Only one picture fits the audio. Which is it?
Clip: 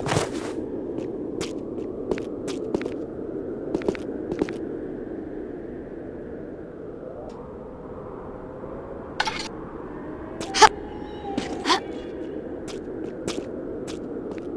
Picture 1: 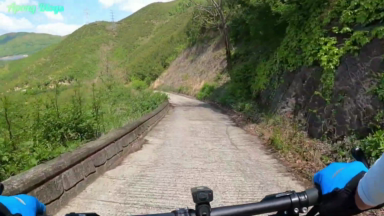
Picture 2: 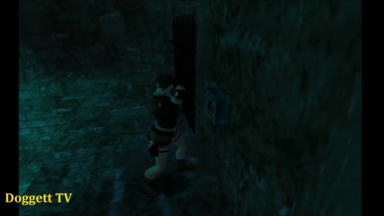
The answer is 2